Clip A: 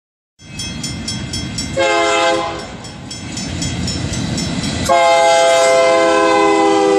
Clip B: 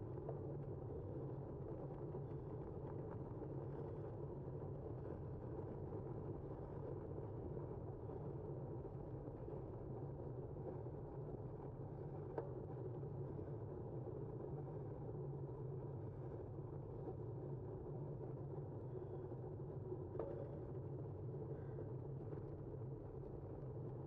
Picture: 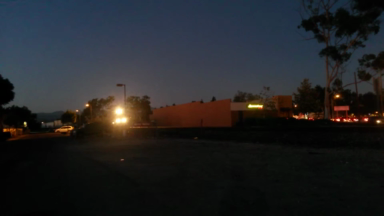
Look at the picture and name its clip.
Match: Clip A